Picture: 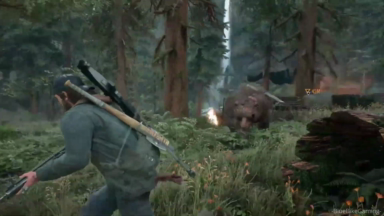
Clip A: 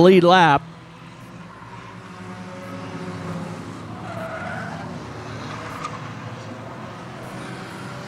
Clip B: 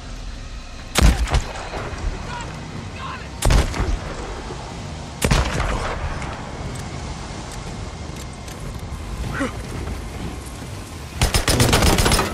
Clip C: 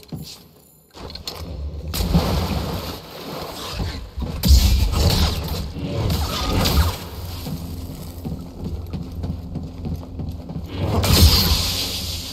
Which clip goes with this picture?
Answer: B